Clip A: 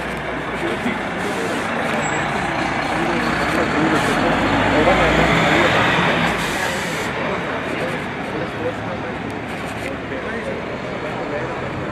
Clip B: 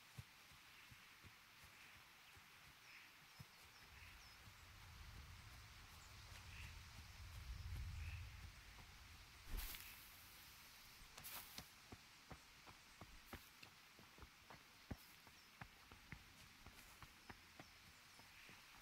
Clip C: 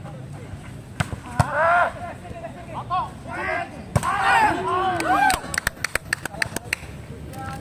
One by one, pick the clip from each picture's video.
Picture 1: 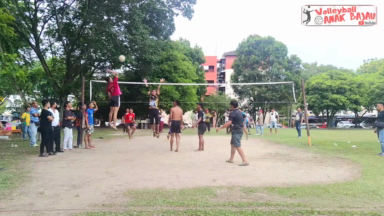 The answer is C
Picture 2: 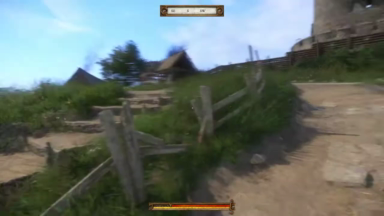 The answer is B